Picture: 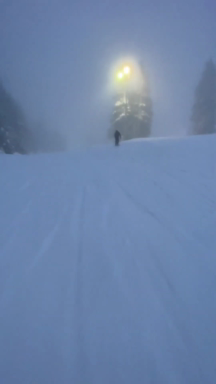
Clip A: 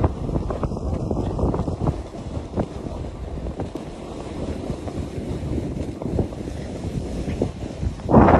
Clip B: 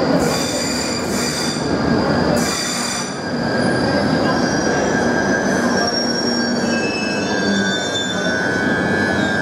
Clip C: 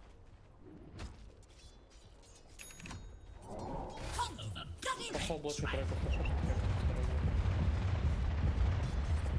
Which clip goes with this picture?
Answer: A